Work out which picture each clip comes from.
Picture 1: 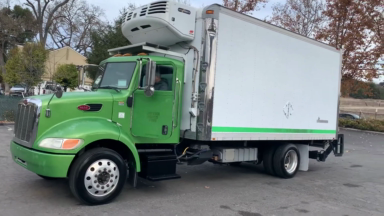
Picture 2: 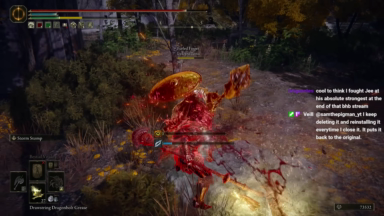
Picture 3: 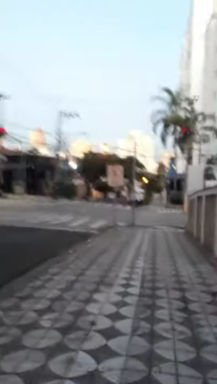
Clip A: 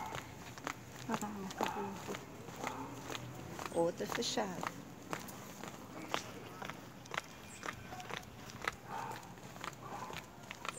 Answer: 3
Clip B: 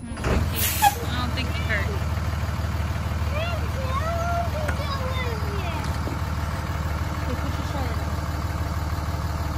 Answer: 1